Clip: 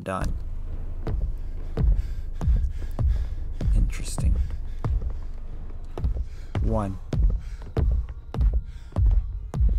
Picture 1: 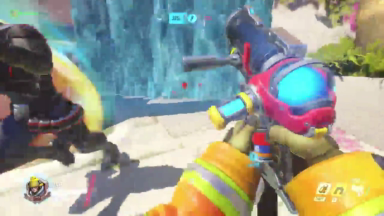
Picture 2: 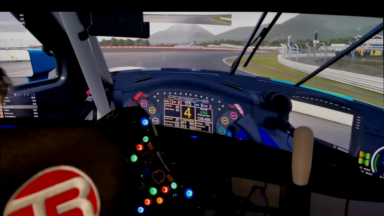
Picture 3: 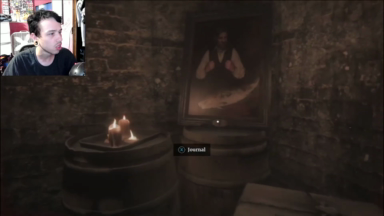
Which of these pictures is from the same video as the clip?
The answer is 3